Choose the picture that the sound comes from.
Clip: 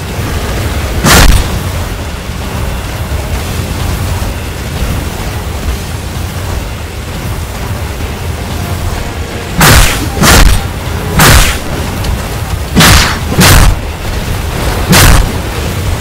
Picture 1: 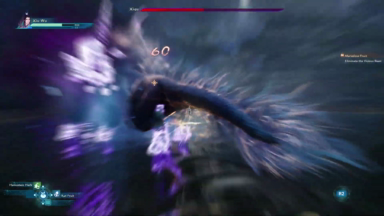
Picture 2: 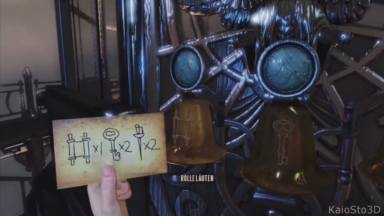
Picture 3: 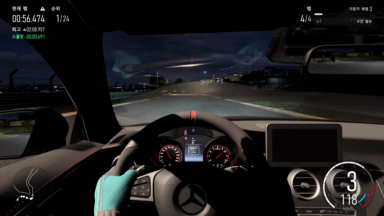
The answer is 1